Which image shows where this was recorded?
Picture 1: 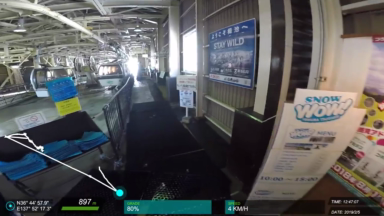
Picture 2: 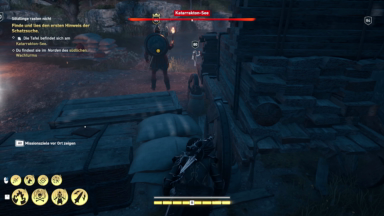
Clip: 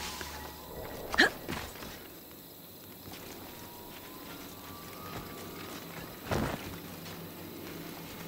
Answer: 2